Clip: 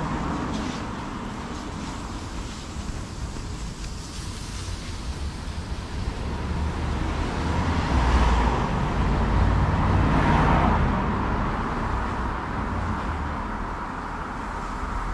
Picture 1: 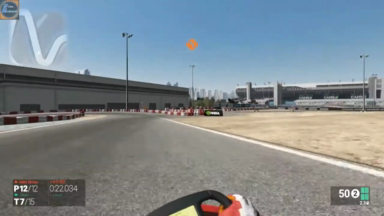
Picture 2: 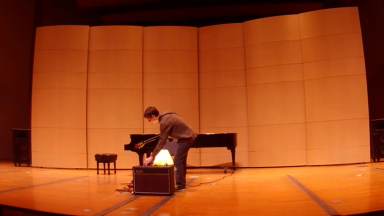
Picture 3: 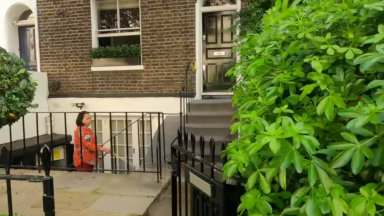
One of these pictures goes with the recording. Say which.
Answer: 3